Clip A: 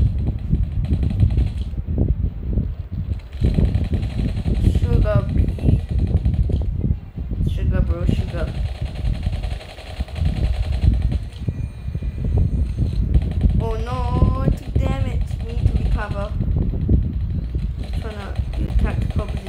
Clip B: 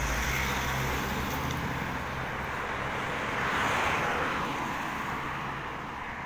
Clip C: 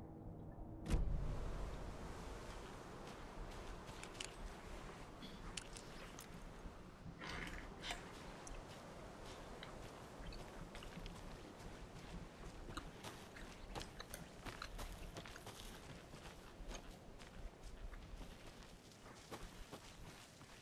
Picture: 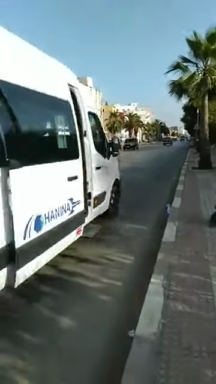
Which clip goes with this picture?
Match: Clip B